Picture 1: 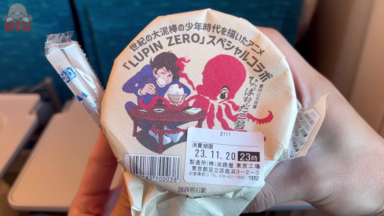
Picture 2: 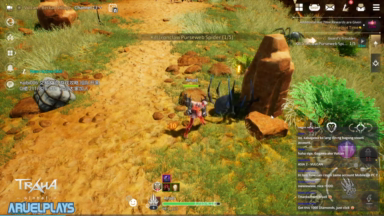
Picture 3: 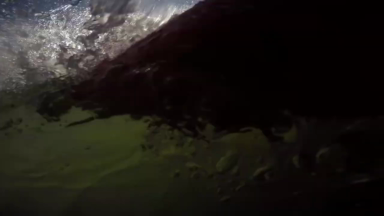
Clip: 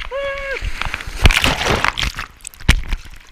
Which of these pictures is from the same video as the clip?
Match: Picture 3